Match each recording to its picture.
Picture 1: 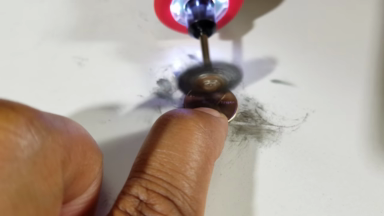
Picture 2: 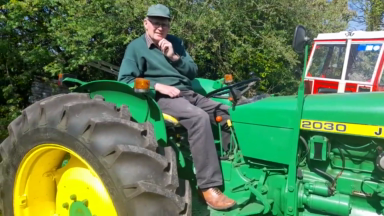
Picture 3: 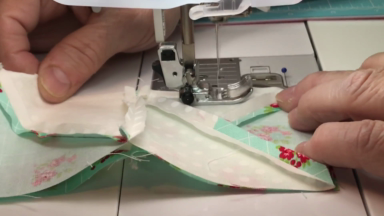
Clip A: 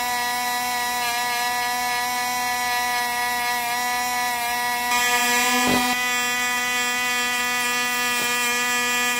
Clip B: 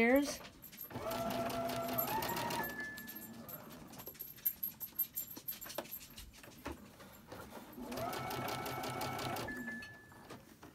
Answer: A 1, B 3